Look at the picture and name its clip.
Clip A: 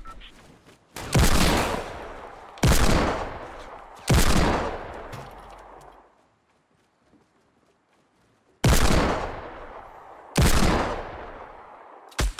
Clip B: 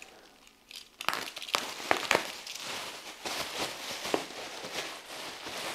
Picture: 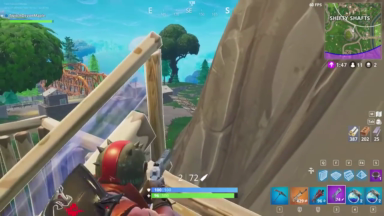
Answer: A